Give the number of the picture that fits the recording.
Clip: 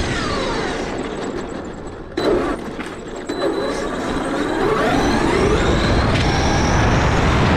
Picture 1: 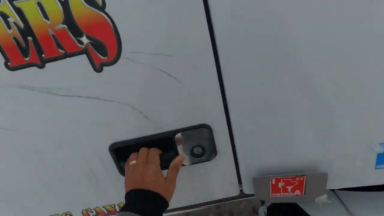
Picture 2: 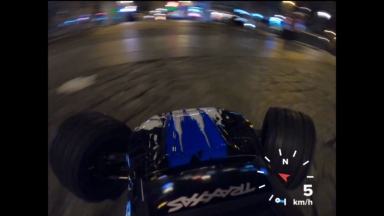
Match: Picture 2